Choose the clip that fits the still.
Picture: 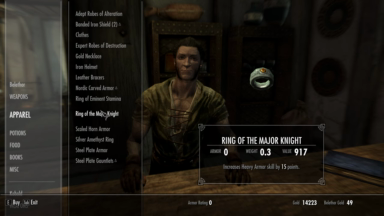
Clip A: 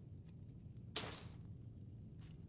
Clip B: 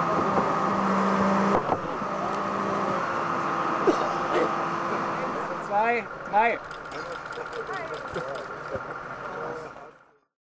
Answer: A